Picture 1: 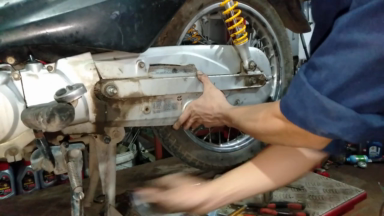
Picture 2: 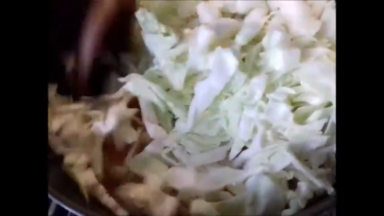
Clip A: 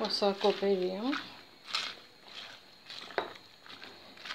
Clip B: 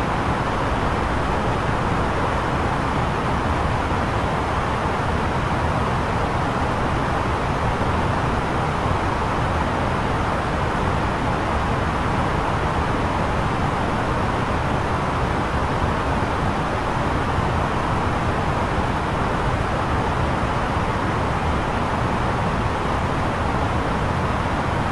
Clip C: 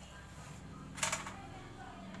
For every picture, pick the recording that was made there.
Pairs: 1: C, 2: A